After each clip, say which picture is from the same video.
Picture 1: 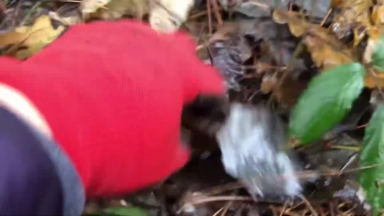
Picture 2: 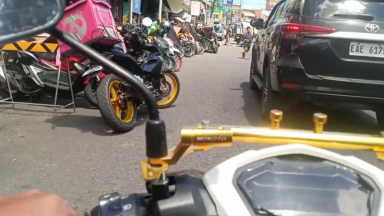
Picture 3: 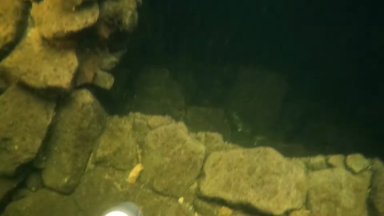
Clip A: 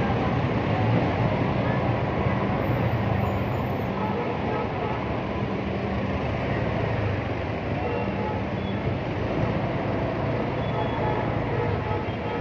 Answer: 2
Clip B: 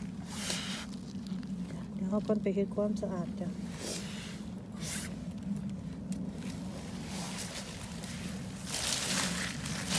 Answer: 1